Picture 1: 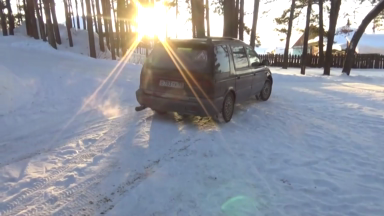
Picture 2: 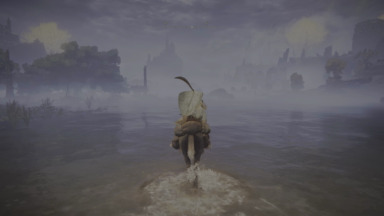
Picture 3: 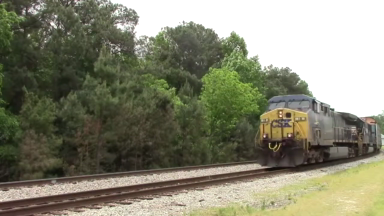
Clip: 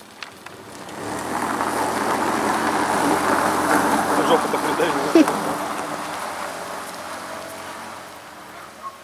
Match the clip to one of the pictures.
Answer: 1